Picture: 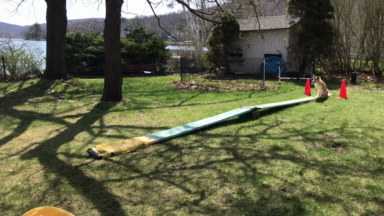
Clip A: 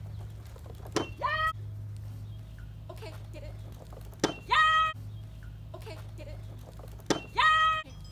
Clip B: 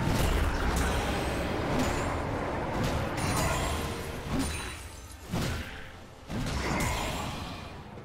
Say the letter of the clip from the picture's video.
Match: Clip A